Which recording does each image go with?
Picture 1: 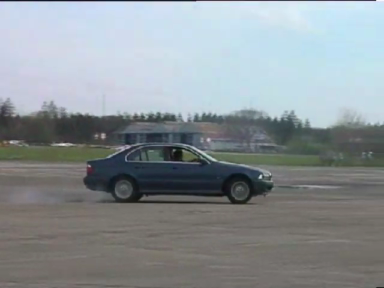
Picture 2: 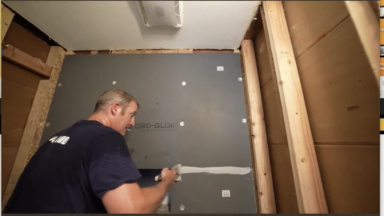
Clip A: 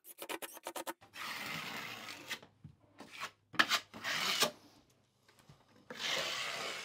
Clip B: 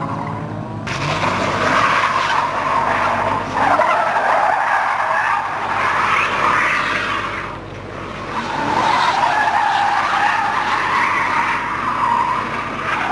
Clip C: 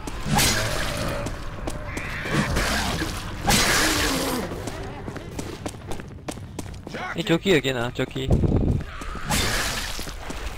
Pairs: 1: B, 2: A